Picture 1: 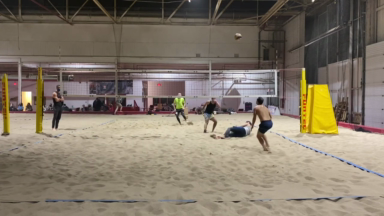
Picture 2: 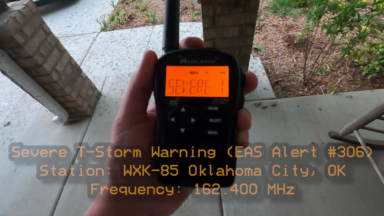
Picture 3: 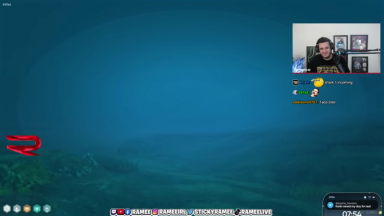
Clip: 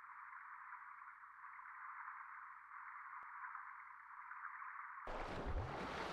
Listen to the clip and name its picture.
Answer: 3